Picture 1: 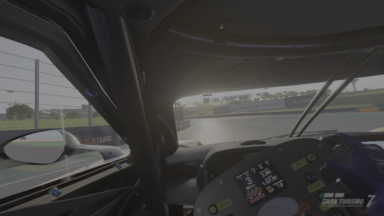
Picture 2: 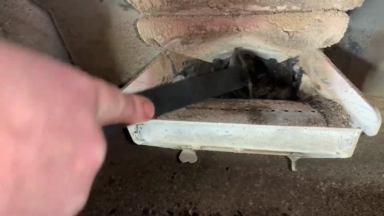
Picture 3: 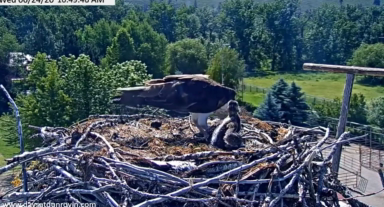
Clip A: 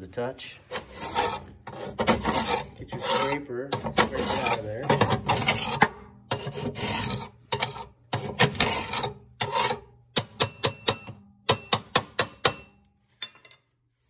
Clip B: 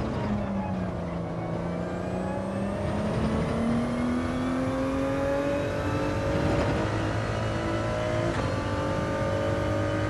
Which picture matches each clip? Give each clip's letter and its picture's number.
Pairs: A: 2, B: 1